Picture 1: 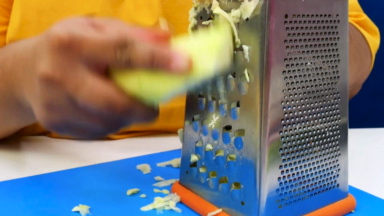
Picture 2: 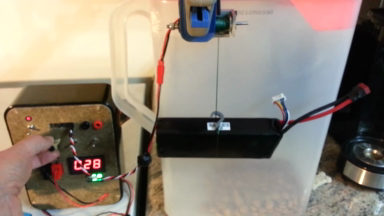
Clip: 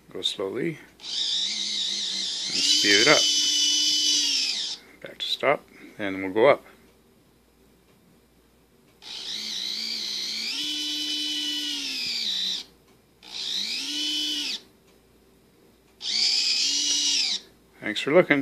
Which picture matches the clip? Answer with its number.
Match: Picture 2